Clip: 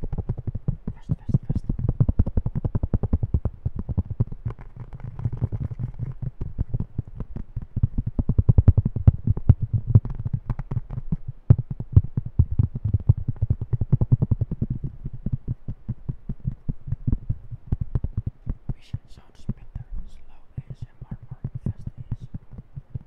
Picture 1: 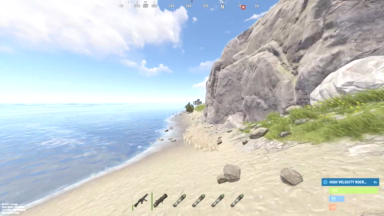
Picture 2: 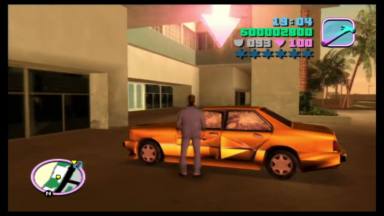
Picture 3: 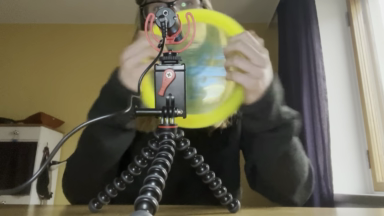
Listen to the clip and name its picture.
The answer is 3